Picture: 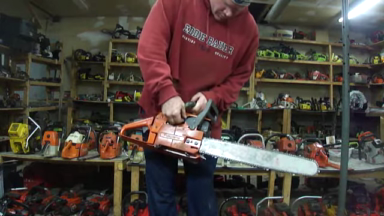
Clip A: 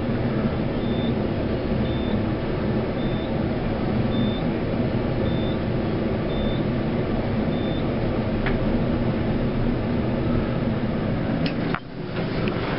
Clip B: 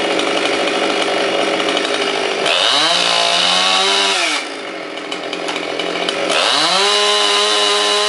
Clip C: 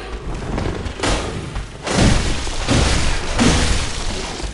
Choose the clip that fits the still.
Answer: B